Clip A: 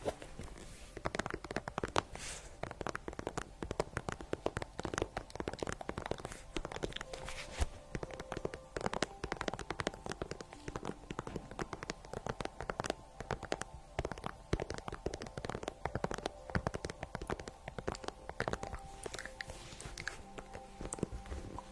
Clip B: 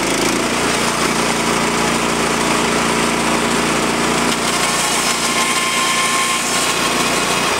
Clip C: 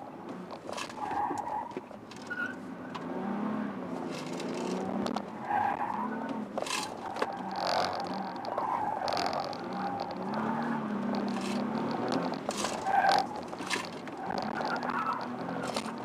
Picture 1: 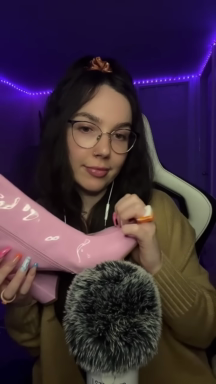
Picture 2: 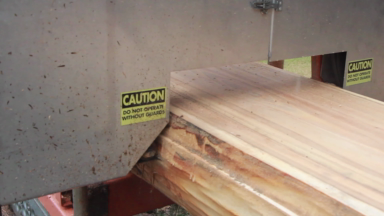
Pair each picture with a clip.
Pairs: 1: A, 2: B